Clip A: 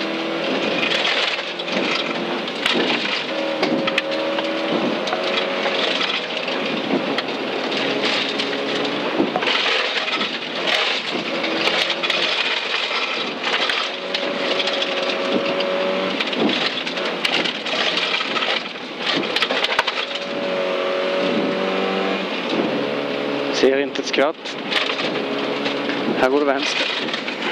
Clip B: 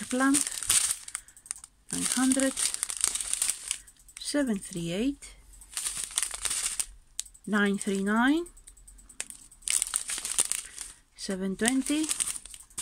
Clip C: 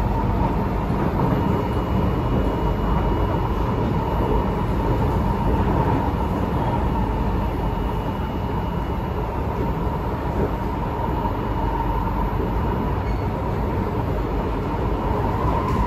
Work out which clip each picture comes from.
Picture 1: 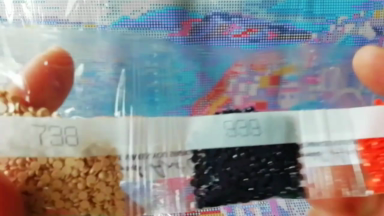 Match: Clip B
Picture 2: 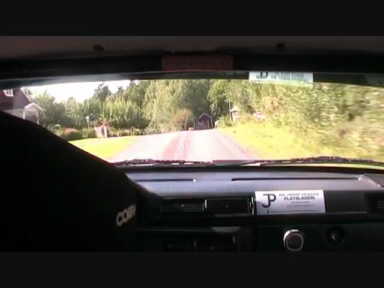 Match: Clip A